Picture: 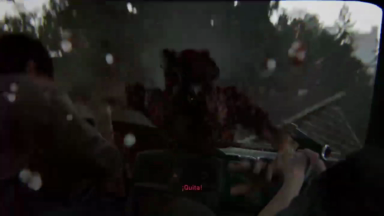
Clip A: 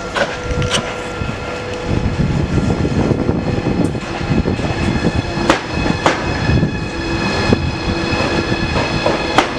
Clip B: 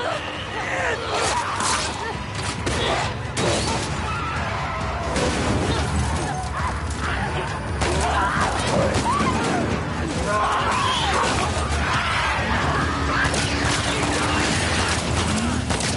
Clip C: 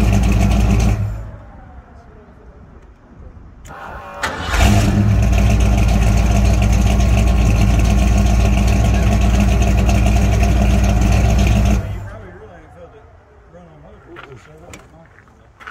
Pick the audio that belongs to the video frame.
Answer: B